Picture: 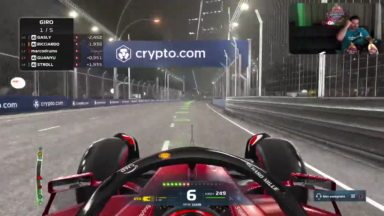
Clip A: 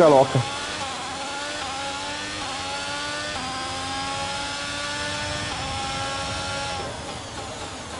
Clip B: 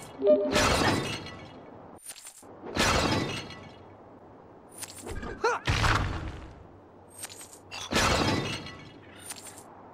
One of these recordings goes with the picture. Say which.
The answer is A